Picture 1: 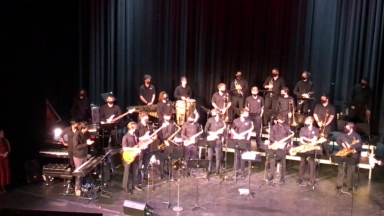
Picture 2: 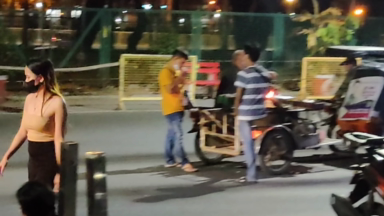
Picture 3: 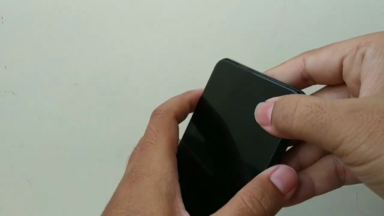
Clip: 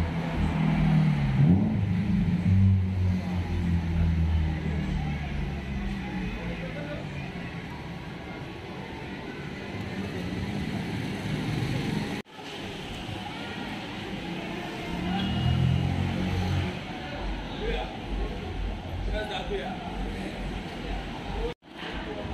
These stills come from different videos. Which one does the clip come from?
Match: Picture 2